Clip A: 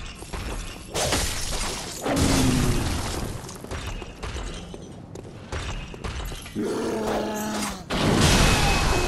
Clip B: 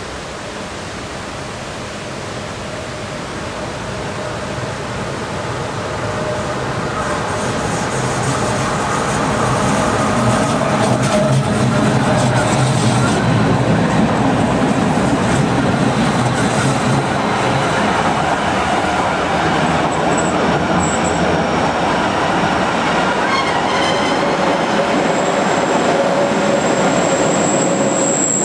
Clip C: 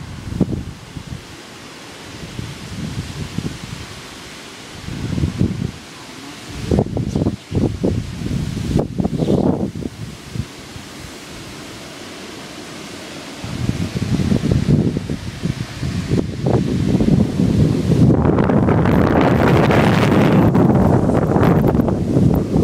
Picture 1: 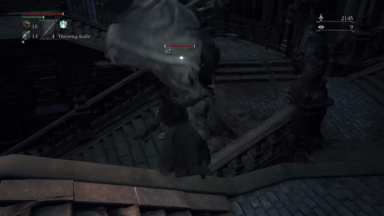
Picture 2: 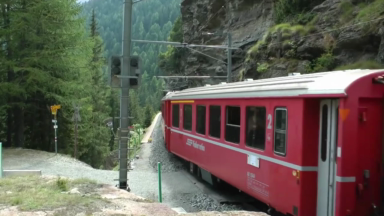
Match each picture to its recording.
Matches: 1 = A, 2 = B